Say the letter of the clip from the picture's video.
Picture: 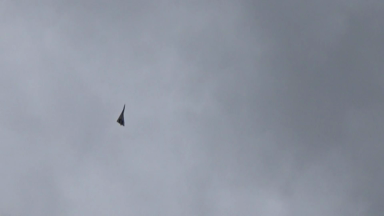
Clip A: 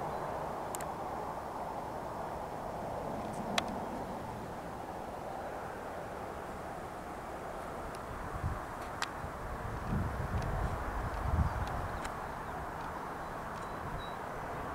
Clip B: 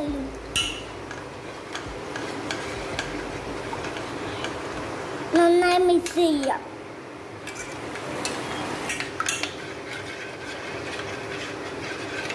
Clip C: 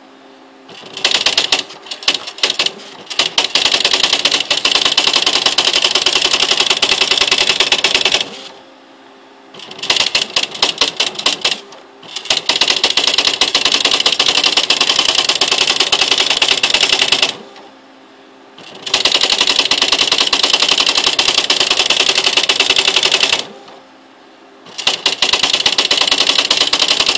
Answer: A